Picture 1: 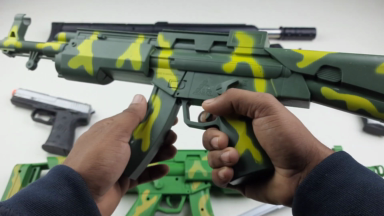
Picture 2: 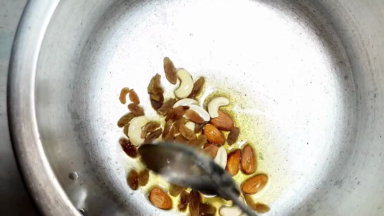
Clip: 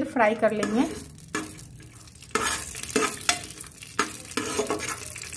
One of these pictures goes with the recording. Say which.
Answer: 2